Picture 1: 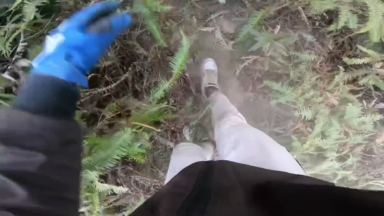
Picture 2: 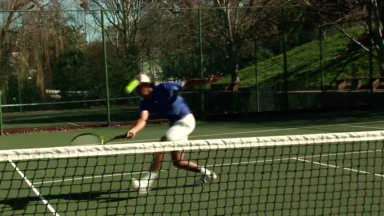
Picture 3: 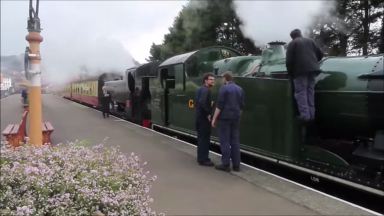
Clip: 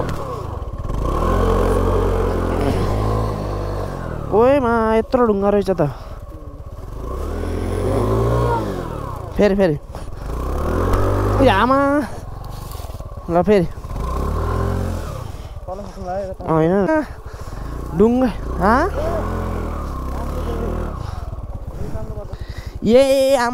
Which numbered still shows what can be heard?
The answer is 1